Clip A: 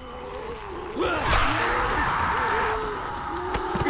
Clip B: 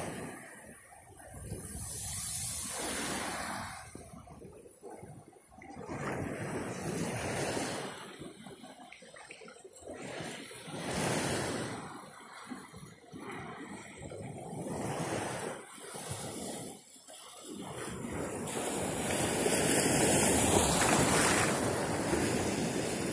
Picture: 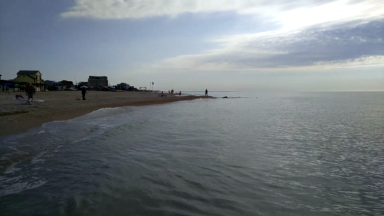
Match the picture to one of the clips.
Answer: B